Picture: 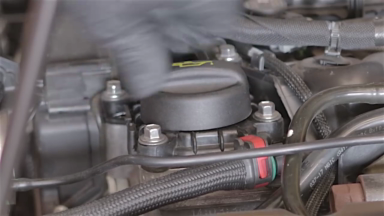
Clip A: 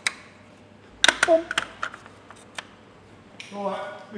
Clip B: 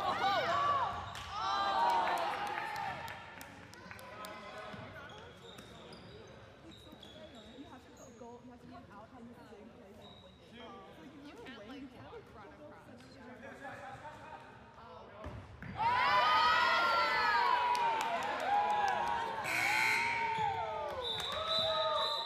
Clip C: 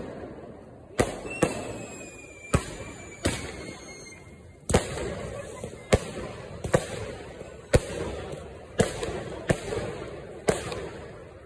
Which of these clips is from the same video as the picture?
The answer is A